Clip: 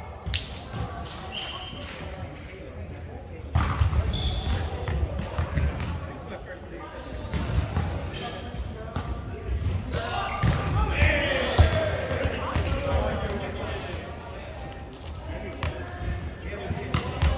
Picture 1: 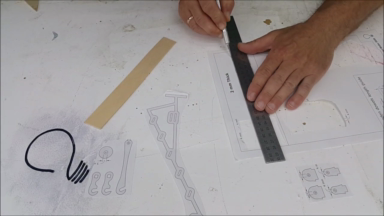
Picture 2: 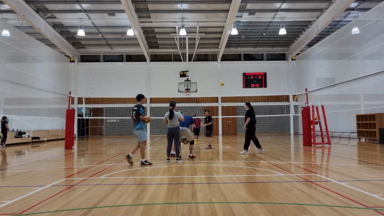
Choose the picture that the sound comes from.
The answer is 2